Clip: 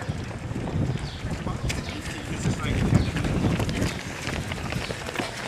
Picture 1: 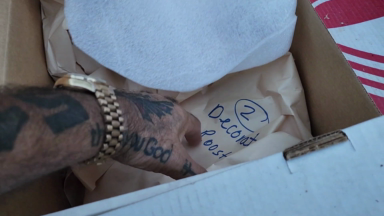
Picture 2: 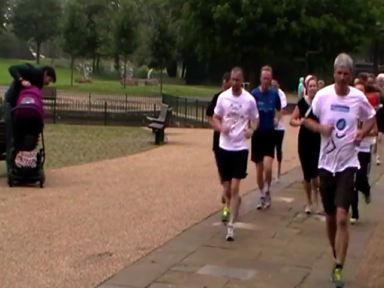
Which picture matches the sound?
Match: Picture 2